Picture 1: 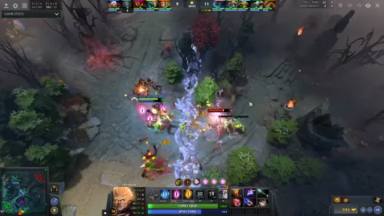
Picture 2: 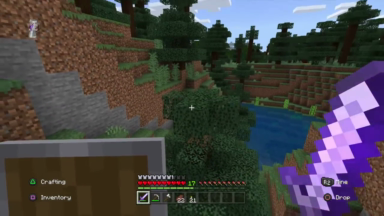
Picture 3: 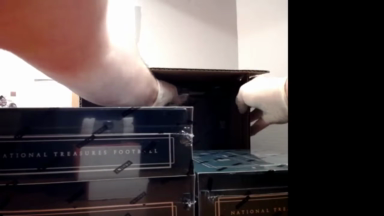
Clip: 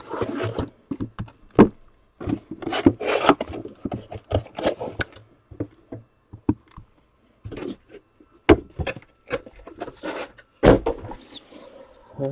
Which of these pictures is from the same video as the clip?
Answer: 3